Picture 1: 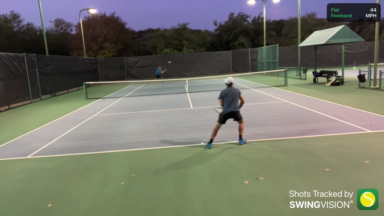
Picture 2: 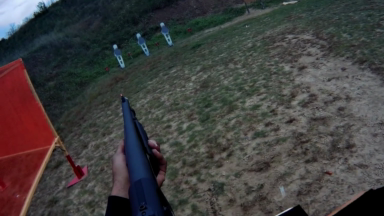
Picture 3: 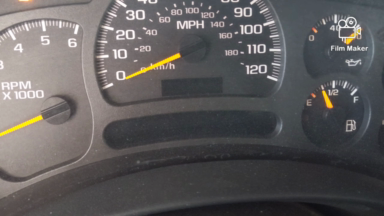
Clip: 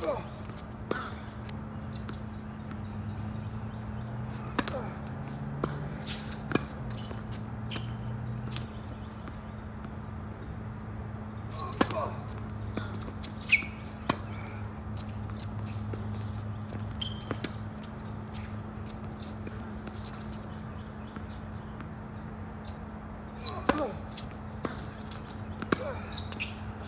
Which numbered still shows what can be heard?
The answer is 1